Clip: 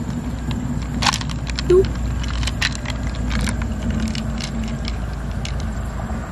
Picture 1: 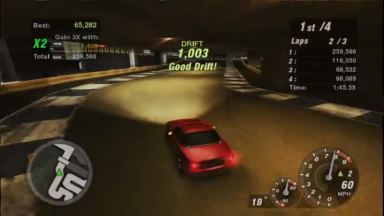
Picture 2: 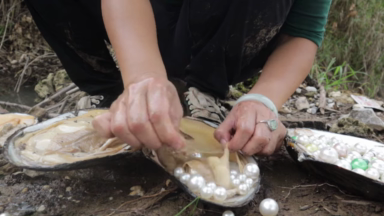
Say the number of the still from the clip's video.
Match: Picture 2